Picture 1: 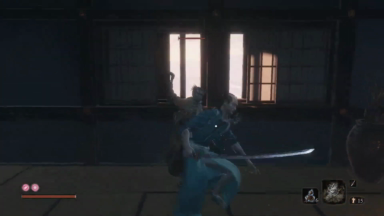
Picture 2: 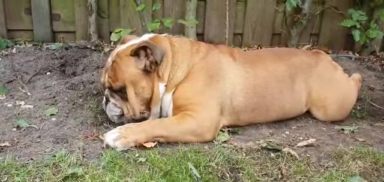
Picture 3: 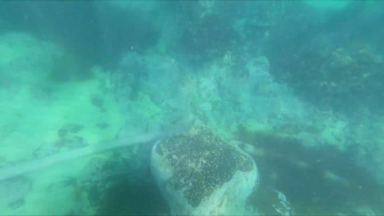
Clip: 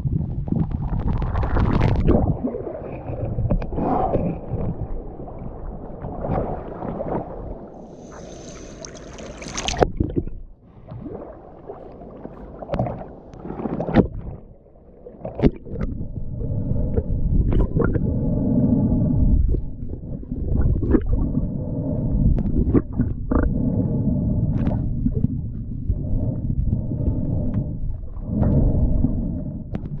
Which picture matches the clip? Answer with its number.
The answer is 3